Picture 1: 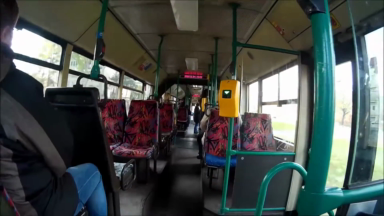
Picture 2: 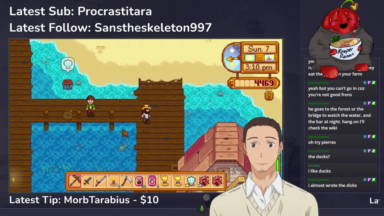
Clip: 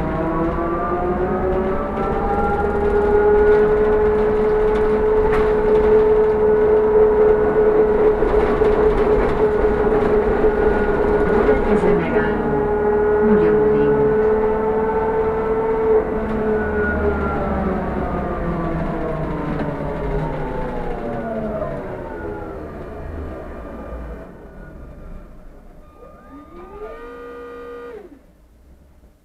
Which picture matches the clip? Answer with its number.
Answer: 1